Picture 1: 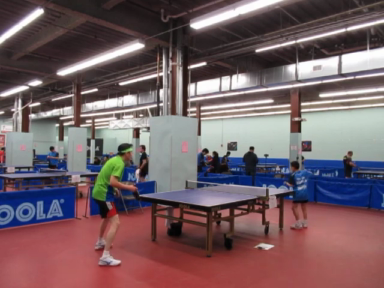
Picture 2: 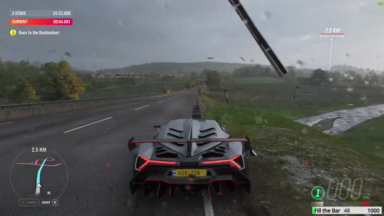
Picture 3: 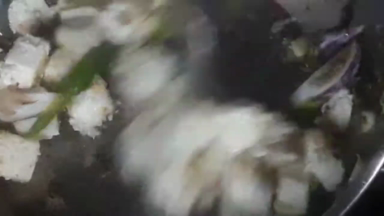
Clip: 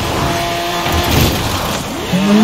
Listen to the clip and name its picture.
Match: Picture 2